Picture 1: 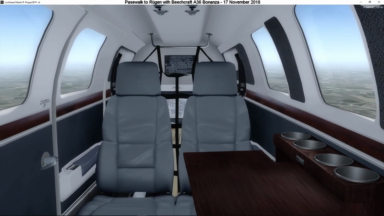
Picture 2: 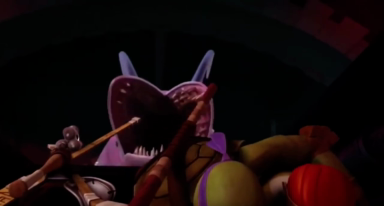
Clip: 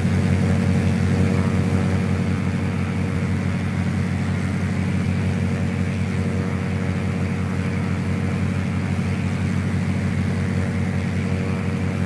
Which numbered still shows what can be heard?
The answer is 1